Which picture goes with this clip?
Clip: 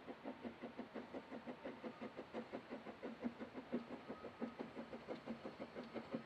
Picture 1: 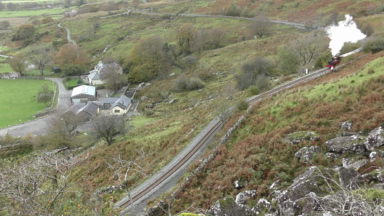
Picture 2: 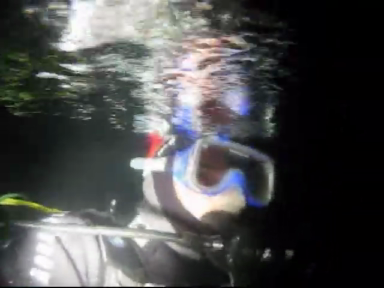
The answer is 1